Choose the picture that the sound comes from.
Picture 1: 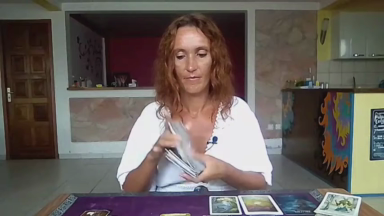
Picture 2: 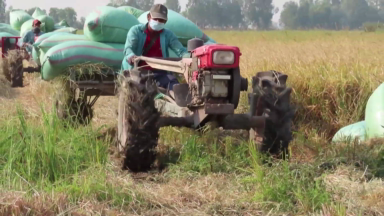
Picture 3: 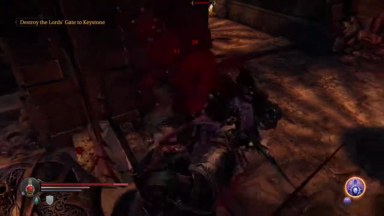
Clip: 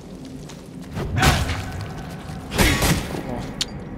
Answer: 3